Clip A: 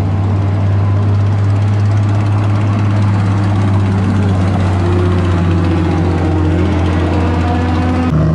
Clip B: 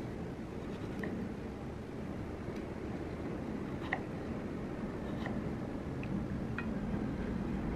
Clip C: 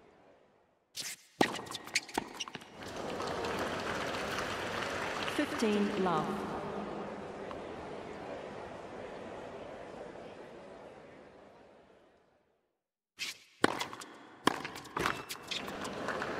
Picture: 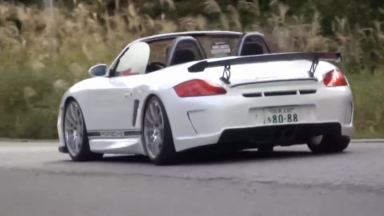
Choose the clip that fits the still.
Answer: A